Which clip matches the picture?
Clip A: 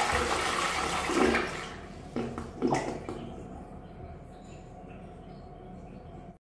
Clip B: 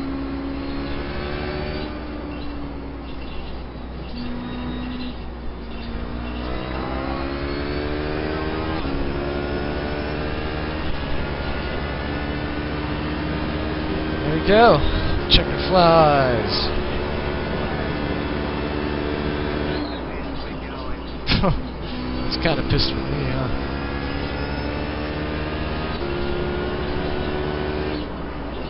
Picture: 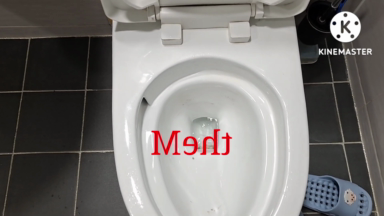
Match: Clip A